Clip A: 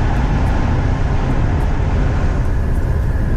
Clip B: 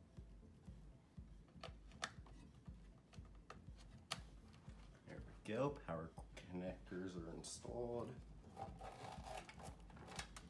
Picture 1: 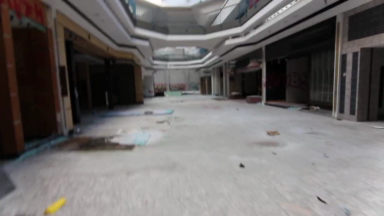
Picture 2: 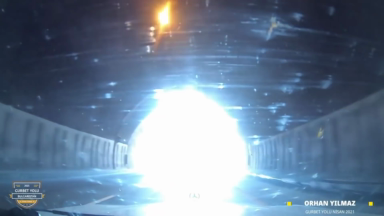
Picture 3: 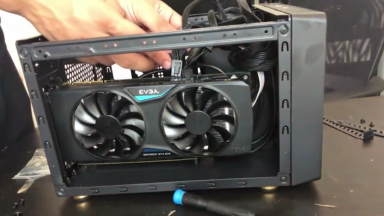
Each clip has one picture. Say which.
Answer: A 2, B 3